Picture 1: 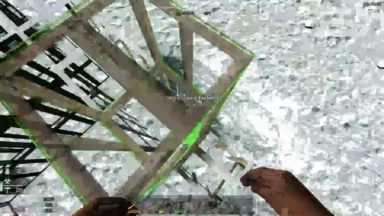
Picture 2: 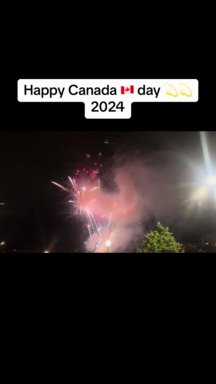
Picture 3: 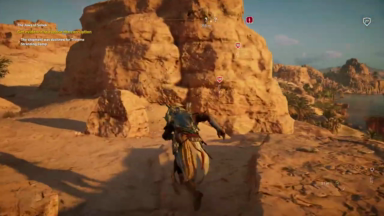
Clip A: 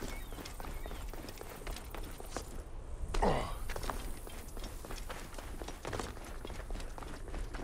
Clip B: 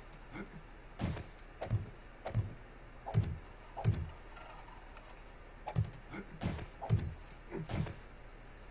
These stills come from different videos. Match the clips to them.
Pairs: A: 3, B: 1